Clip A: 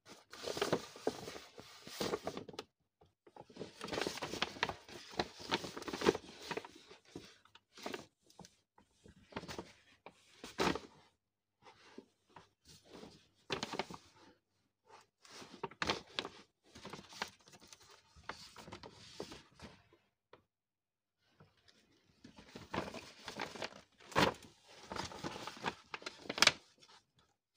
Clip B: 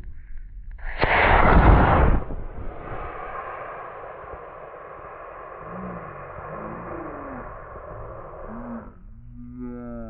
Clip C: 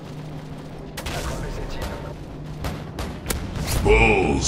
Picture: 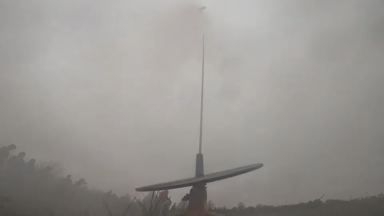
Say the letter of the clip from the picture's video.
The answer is B